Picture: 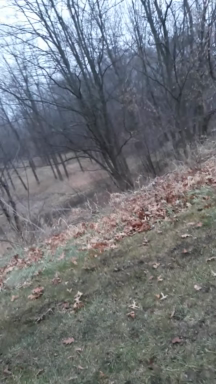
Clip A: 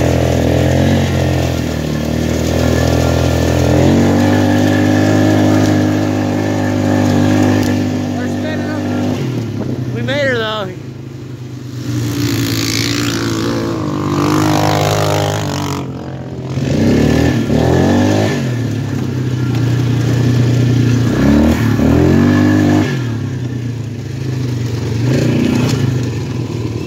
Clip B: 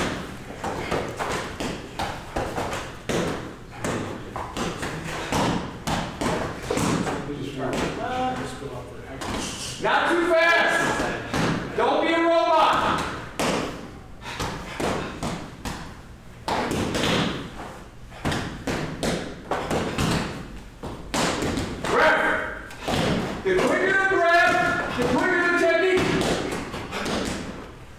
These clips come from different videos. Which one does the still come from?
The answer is A